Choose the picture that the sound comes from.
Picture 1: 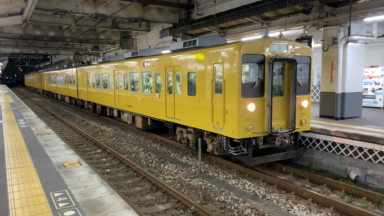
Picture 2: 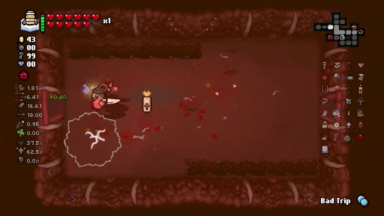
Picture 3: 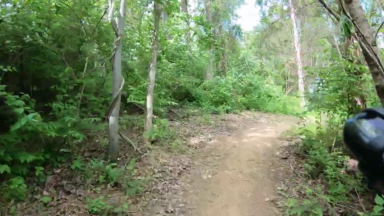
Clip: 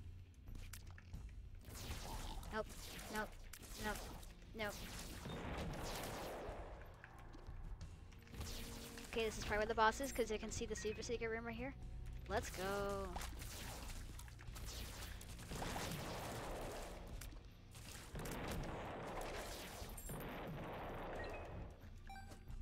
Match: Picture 2